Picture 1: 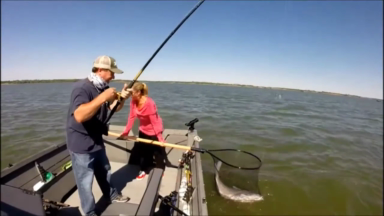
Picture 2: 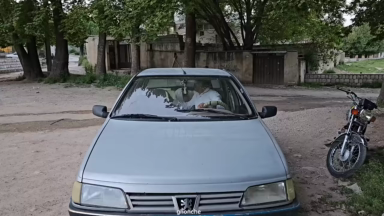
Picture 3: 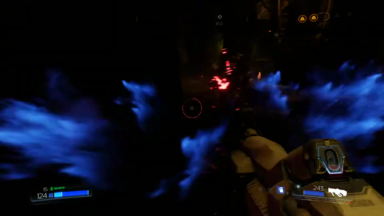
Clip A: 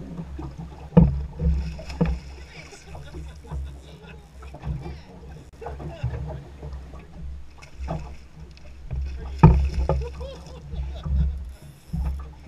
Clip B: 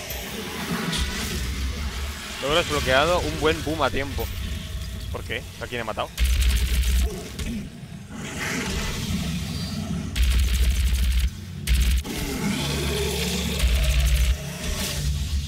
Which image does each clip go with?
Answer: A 1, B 3